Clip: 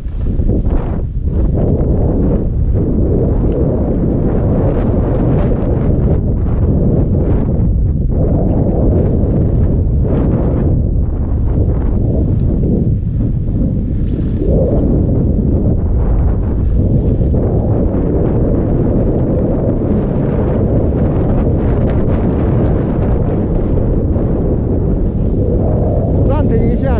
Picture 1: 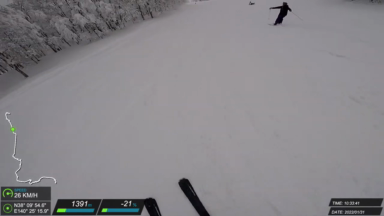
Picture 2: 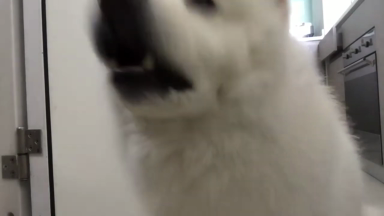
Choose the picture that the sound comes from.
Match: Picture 1